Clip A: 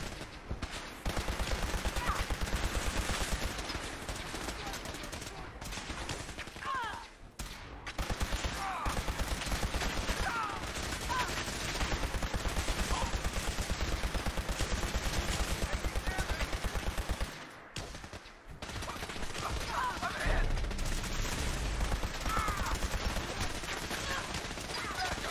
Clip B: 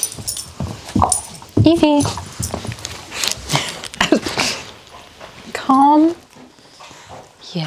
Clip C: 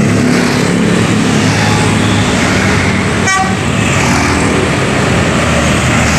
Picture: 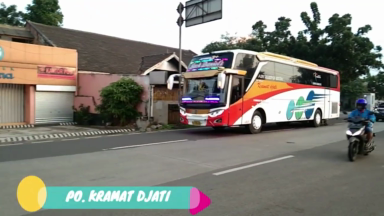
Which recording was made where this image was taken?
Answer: C